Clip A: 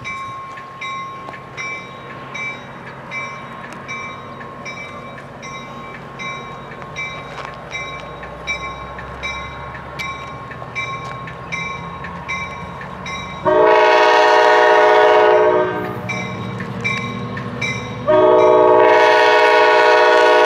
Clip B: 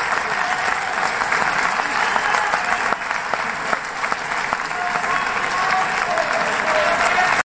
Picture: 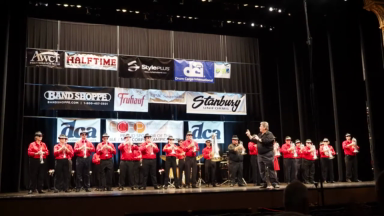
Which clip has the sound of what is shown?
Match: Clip B